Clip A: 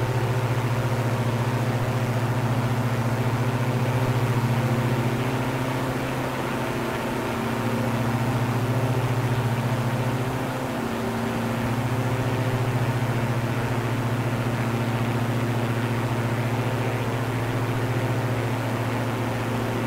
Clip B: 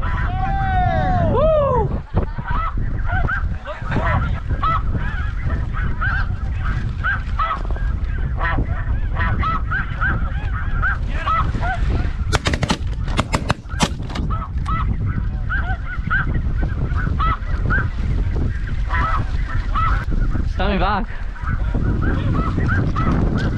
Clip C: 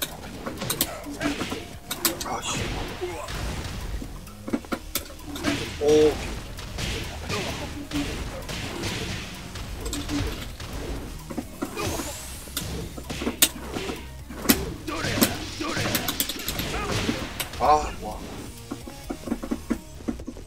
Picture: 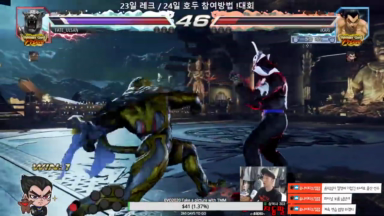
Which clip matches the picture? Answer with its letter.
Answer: C